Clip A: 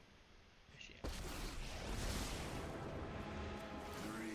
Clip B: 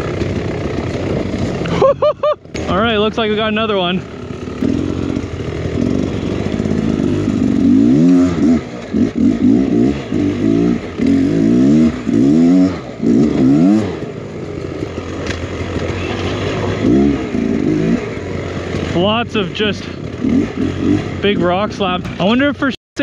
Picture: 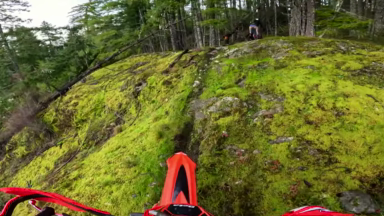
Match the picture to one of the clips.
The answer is B